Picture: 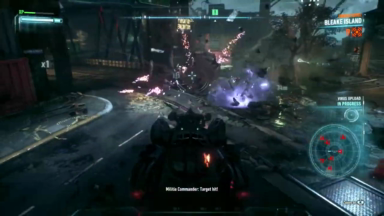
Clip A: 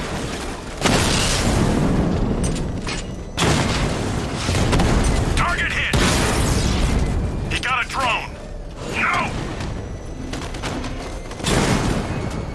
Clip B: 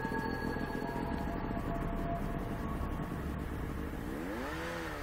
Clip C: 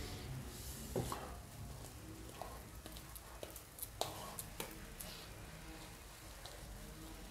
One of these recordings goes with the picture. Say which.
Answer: A